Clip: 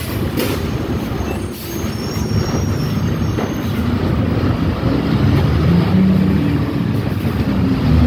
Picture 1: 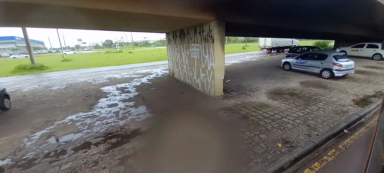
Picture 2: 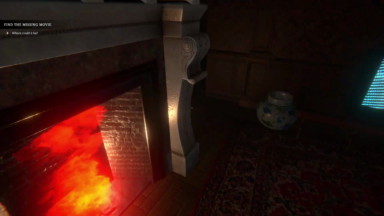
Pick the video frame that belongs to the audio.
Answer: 1